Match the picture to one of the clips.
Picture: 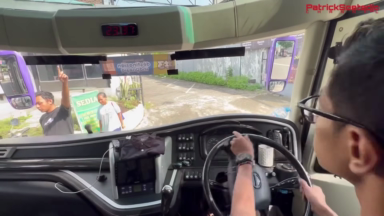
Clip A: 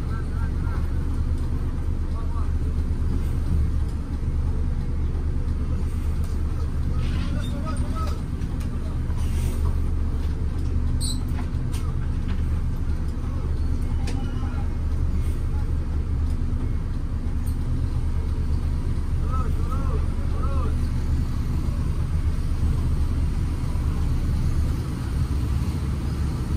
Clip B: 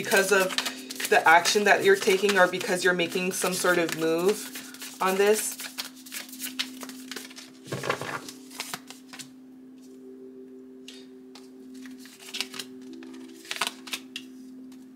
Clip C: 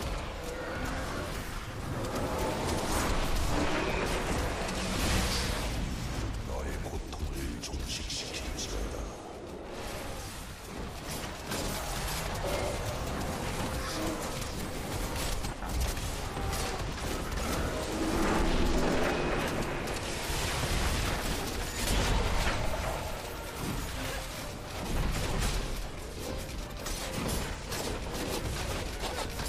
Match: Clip A